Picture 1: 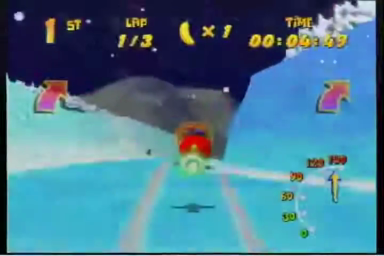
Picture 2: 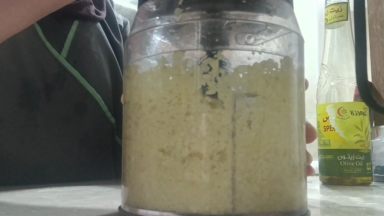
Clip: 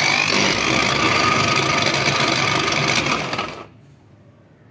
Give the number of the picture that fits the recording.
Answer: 2